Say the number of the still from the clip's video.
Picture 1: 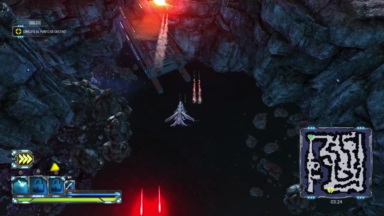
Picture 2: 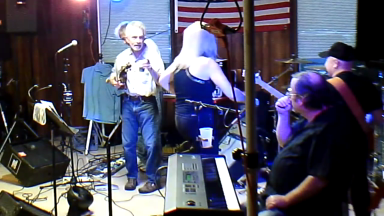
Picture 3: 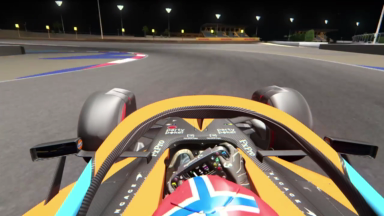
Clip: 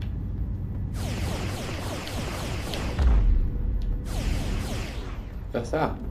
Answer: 1